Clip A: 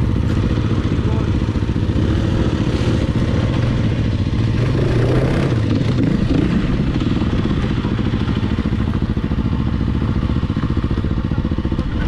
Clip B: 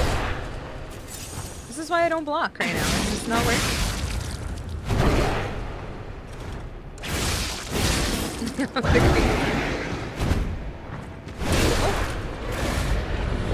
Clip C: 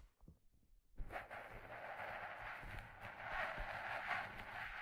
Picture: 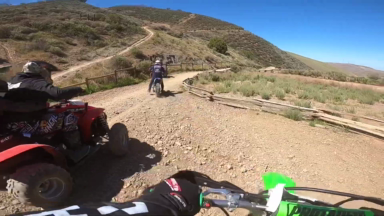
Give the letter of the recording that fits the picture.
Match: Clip A